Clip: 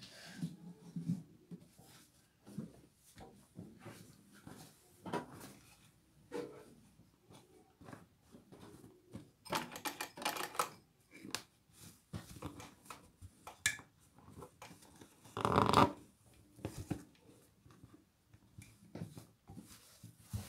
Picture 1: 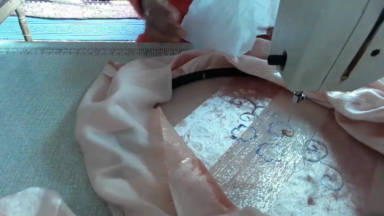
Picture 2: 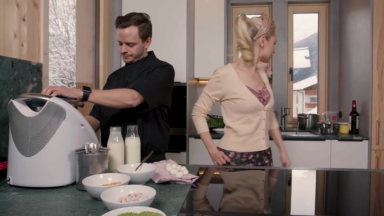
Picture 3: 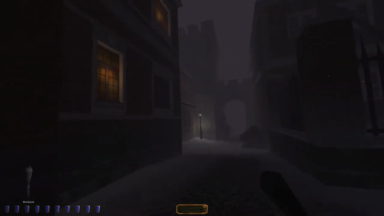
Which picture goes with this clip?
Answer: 1